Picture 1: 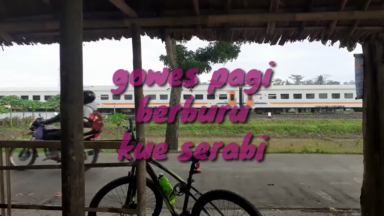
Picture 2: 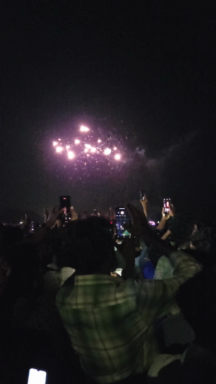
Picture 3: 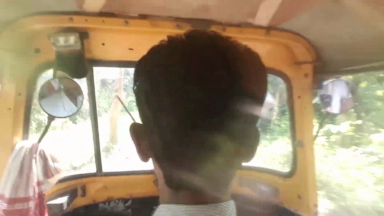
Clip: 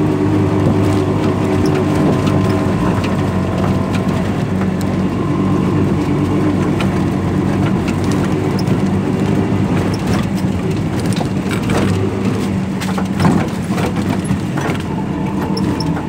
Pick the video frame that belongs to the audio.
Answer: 3